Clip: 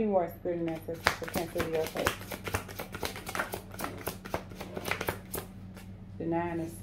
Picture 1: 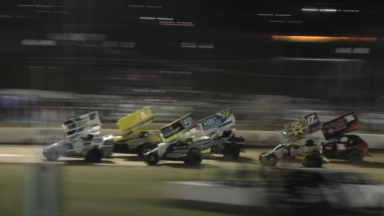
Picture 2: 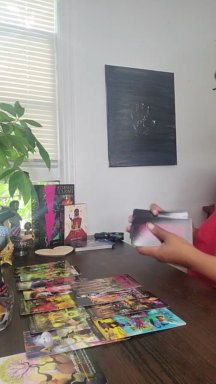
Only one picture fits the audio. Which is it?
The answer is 2